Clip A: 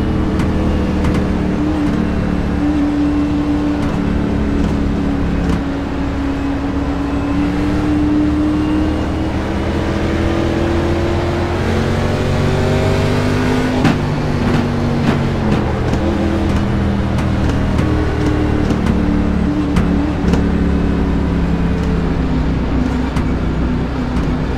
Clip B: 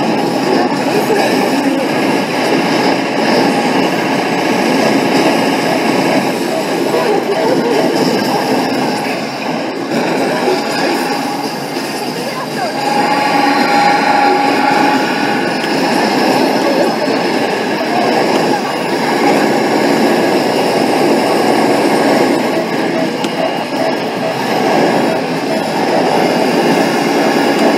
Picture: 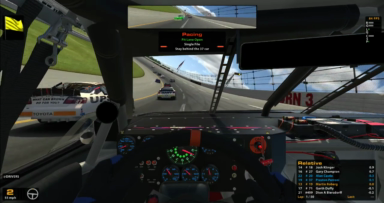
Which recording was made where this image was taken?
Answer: A